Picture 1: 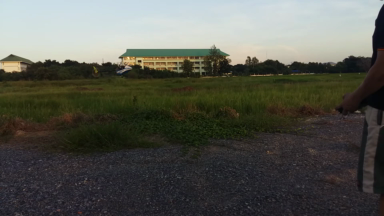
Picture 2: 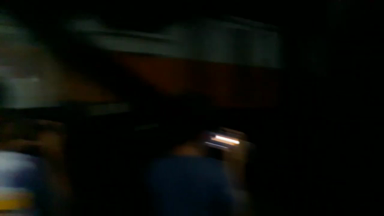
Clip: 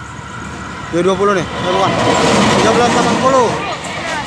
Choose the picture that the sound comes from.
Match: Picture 2